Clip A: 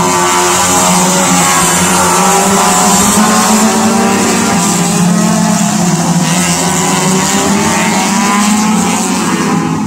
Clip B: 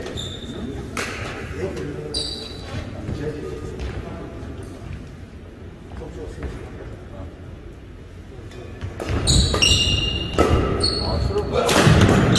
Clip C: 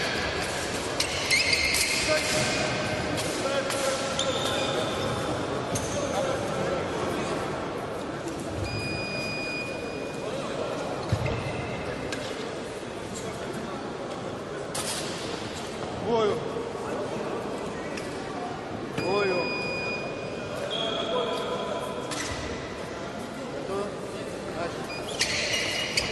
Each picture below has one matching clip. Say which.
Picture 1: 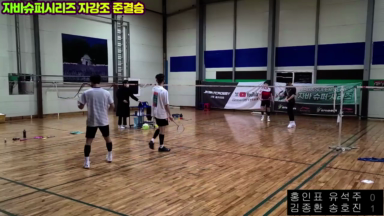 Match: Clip B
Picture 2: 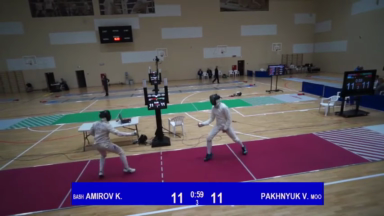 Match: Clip C